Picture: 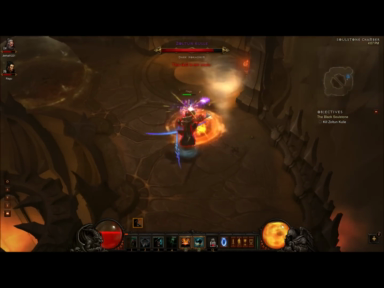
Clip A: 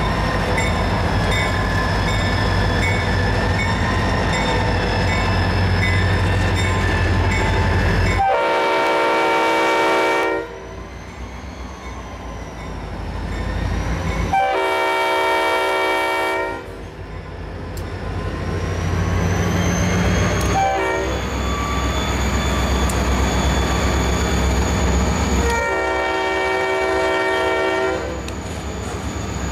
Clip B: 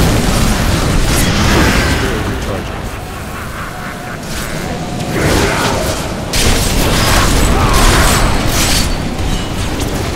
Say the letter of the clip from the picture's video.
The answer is B